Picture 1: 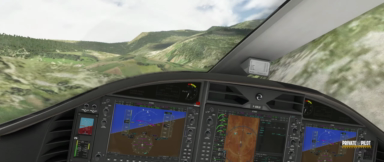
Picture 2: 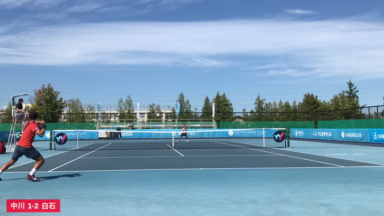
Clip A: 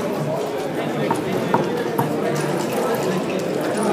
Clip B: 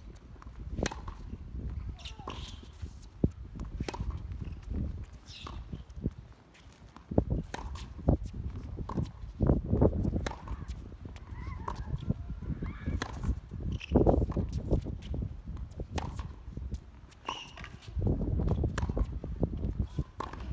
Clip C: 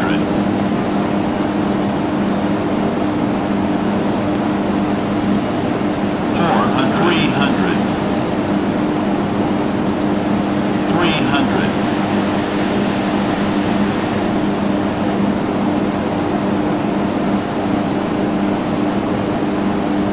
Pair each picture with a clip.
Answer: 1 C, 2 B